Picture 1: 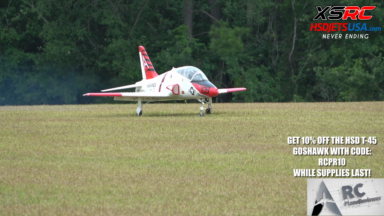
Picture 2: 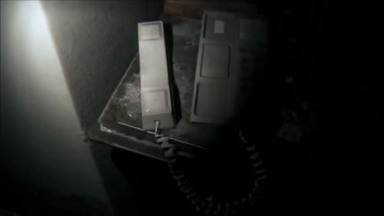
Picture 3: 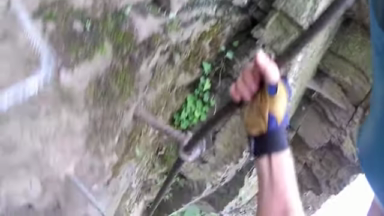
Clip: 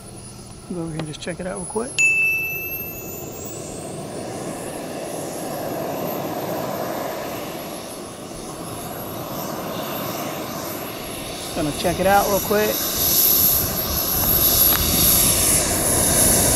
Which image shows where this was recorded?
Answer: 1